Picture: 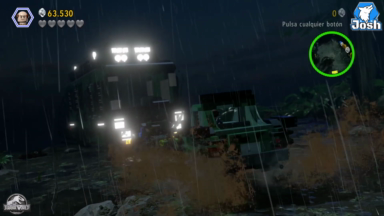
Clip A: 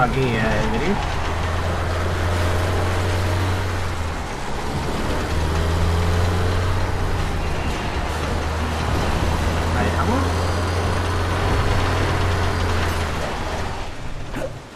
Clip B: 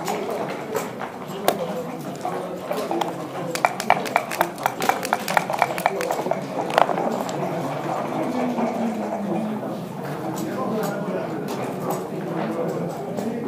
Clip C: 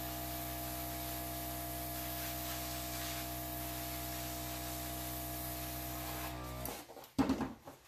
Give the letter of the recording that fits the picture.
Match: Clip A